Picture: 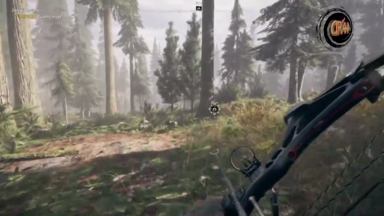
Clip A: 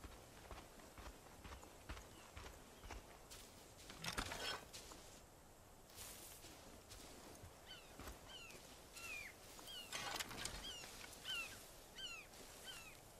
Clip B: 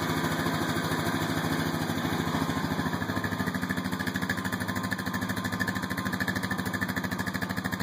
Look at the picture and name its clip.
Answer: A